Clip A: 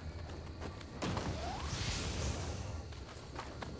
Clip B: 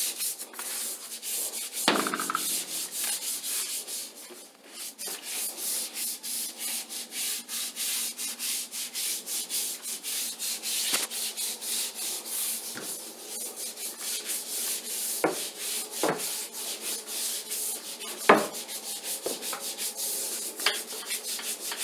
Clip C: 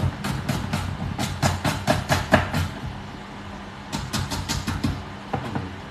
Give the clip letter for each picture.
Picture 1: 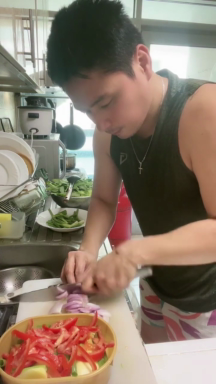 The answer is C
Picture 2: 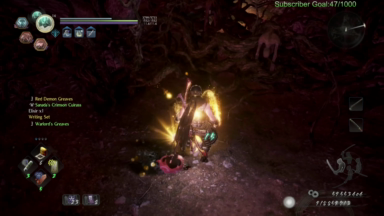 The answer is A